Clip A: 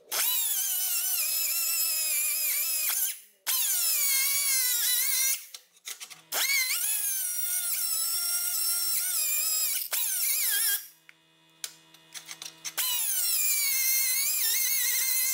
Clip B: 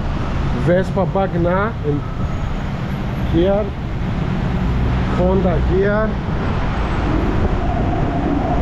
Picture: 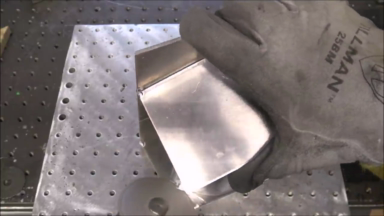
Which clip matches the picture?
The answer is A